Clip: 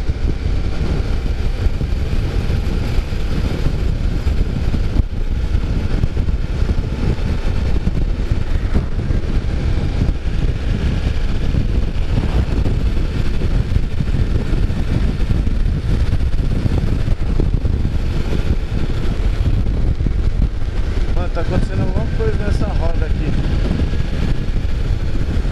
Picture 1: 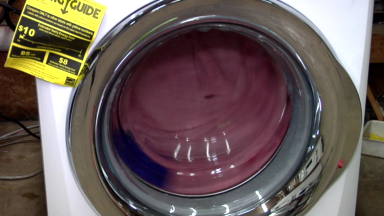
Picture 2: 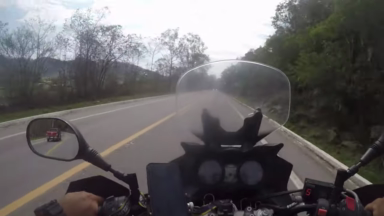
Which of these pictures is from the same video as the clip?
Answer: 2